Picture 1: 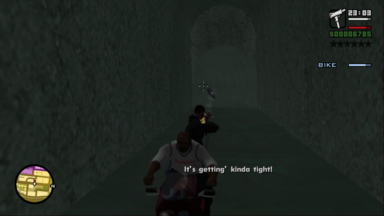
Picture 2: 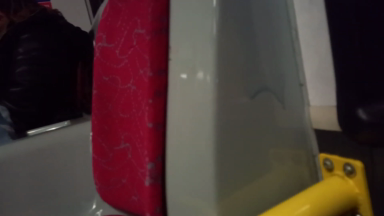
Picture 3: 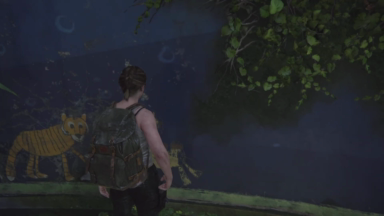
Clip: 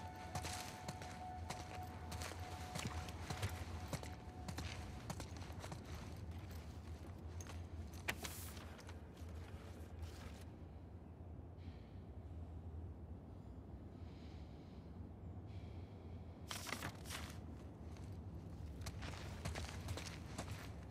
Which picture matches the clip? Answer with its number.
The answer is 3